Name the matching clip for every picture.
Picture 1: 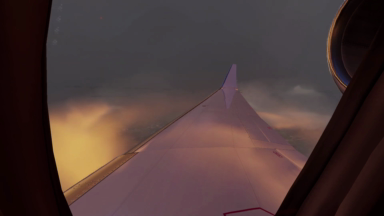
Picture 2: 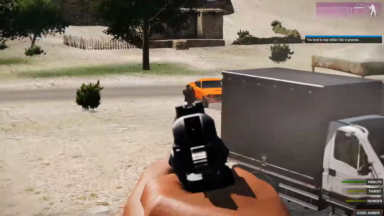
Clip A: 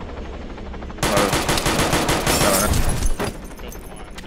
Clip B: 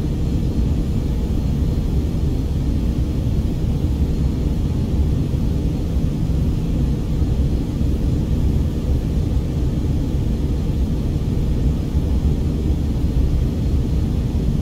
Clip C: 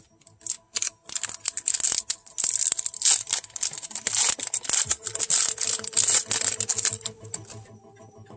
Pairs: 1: B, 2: A